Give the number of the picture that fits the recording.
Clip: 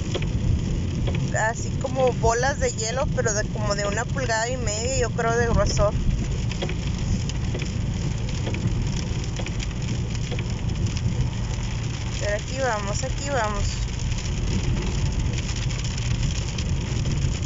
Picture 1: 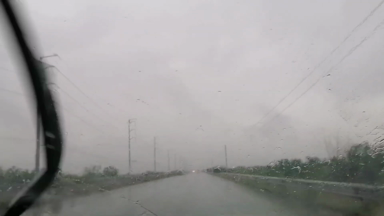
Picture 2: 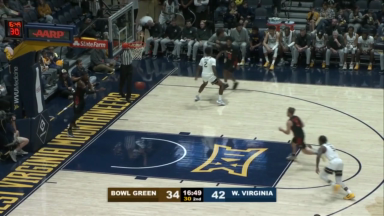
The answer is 1